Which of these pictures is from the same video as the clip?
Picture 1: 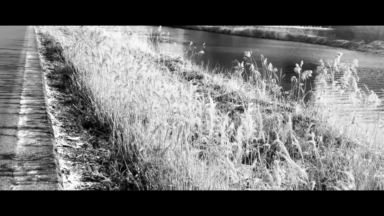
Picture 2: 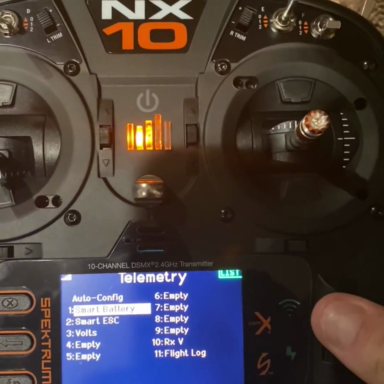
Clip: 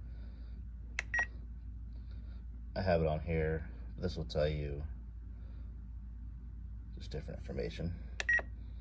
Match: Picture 2